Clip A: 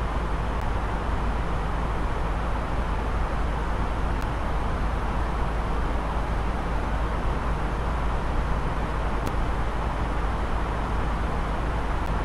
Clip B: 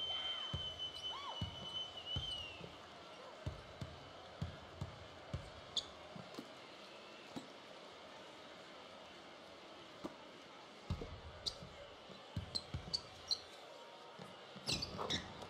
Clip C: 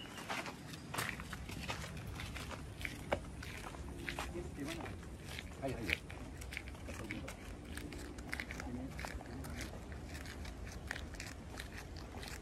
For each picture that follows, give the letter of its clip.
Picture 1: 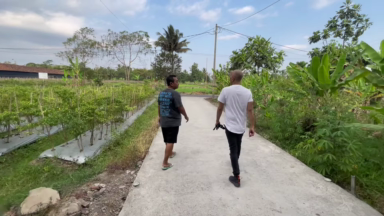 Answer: C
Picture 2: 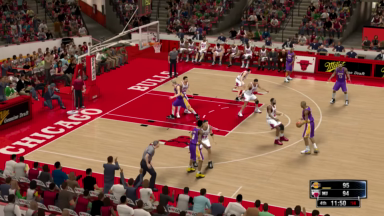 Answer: B